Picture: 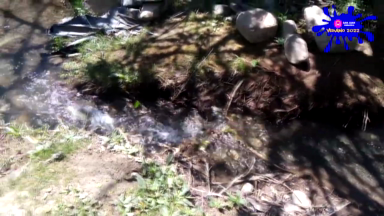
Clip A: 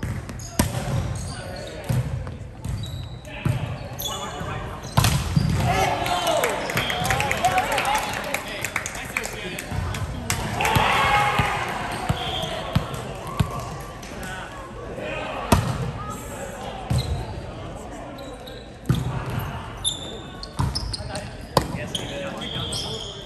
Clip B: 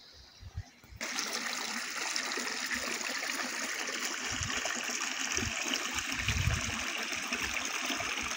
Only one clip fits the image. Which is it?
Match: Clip B